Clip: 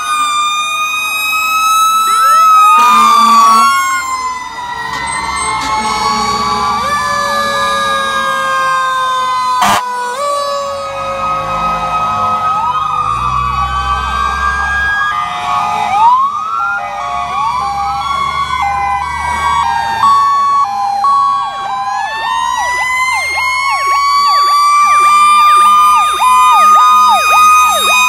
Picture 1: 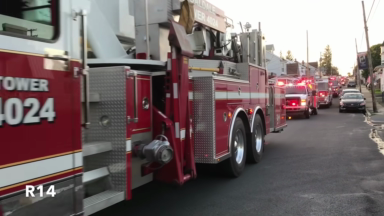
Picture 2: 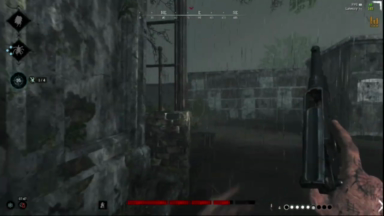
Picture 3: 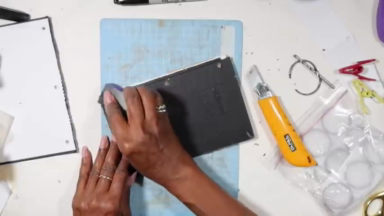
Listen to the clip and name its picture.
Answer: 1